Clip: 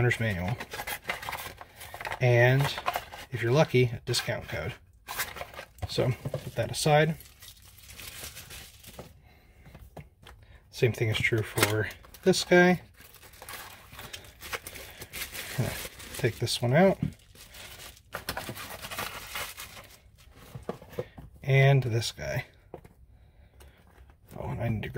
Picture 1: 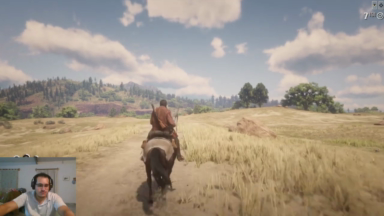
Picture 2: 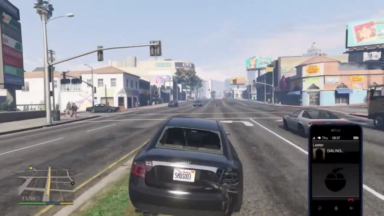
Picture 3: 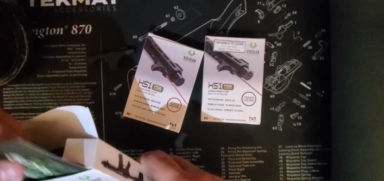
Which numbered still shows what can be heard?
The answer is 3